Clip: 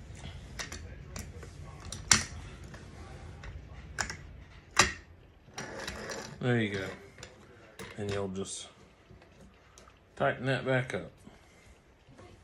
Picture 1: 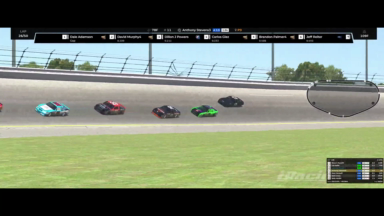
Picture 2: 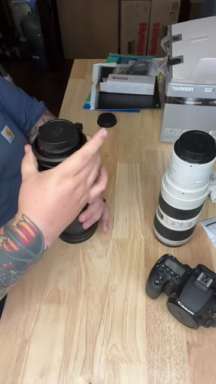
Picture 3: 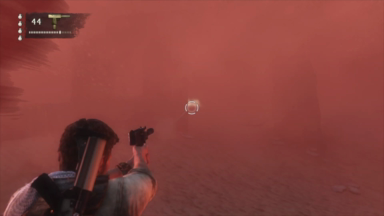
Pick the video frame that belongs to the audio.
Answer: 2